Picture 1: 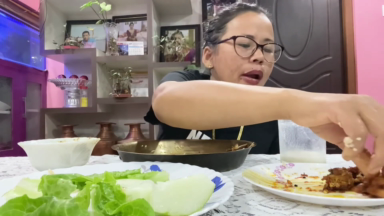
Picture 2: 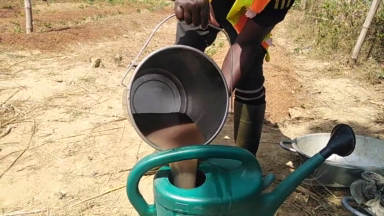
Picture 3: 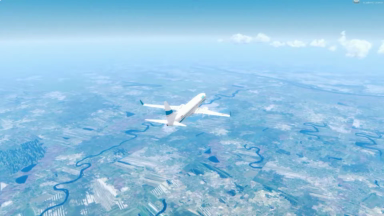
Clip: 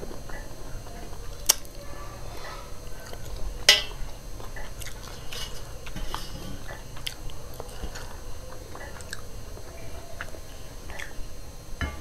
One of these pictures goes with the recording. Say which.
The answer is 1